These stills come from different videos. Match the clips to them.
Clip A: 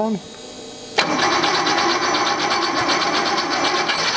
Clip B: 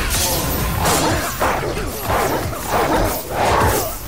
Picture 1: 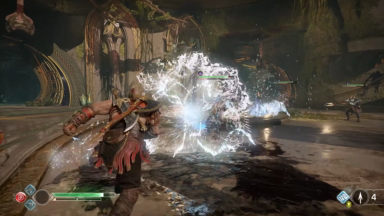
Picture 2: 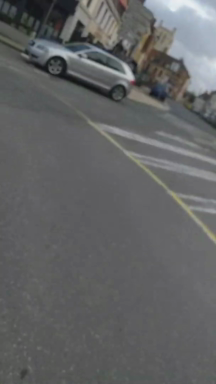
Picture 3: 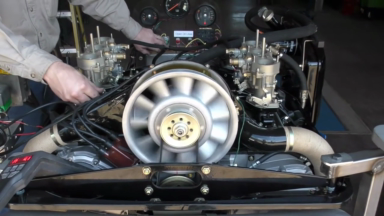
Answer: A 3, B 1